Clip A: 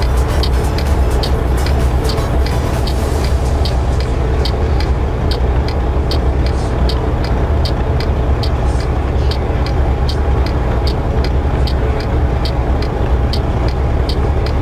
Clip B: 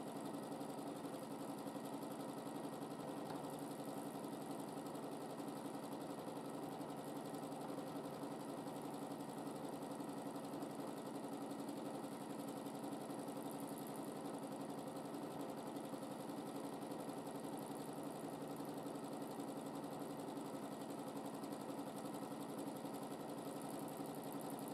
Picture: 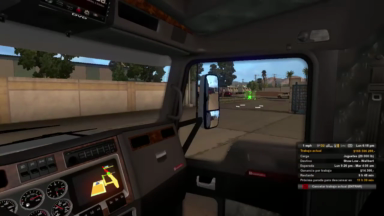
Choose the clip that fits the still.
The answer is A